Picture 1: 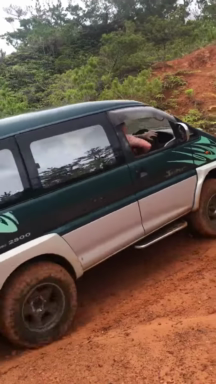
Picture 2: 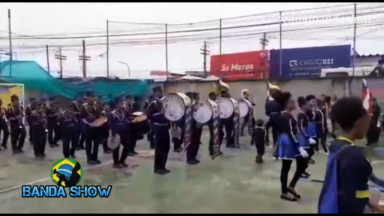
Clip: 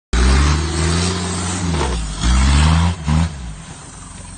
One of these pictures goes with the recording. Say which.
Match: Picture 1